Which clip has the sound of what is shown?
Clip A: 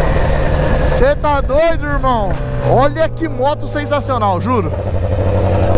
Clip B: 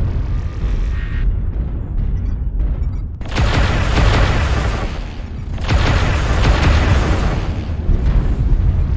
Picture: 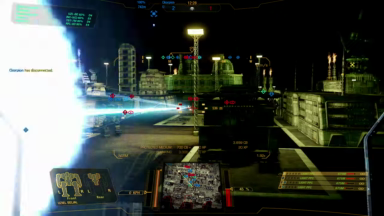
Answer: B